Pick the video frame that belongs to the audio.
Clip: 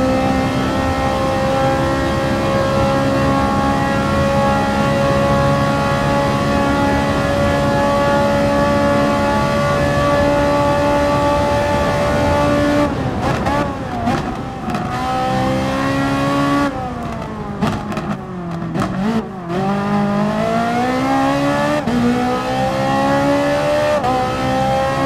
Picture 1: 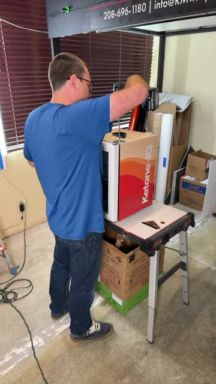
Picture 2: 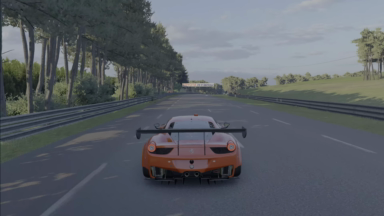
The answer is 2